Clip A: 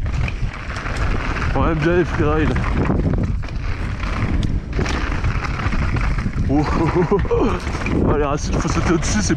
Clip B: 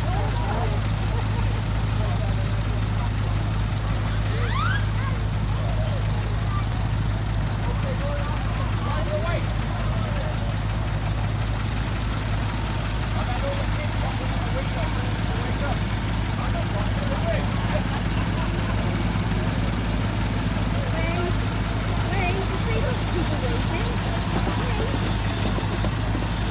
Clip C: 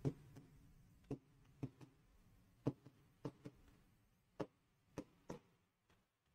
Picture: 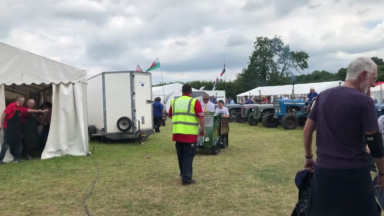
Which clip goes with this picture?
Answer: B